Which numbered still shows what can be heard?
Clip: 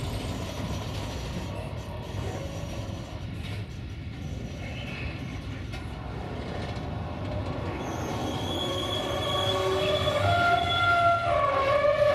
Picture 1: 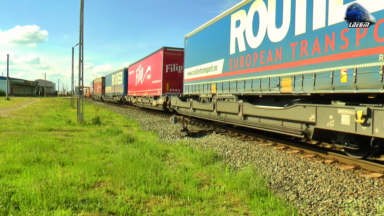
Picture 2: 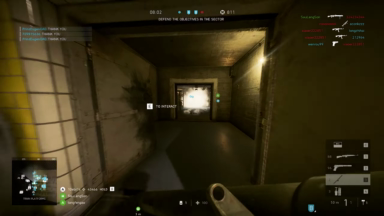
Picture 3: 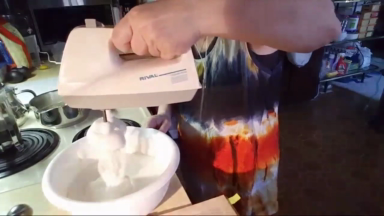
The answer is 1